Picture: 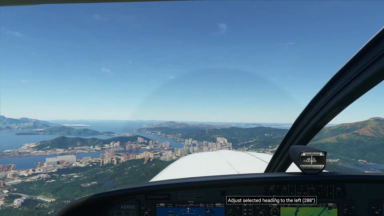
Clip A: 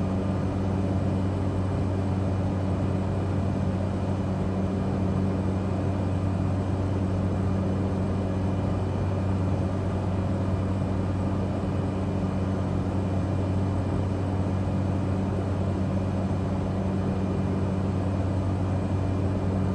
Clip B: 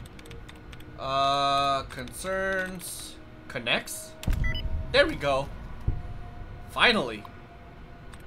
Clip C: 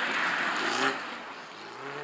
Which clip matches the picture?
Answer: A